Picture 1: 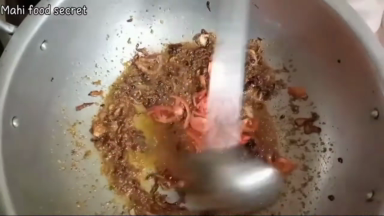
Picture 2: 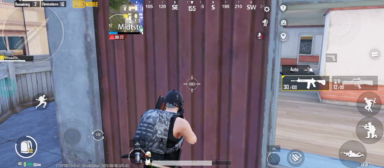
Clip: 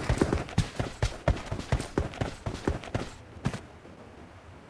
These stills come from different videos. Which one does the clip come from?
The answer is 2